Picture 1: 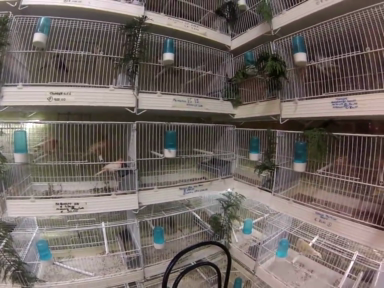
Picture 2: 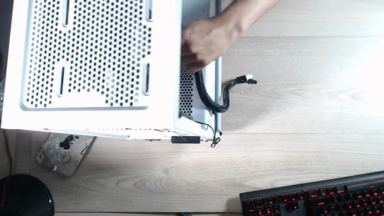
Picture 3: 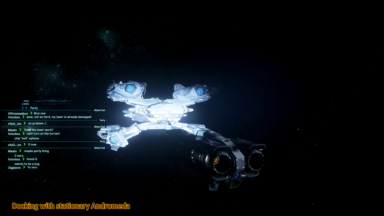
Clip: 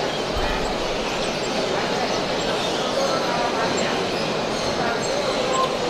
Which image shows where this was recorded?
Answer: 1